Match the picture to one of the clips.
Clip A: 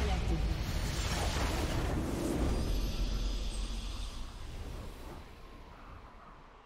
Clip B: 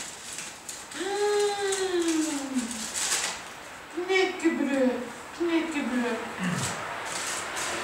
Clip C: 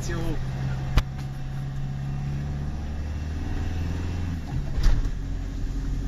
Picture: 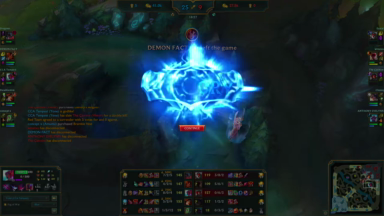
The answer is A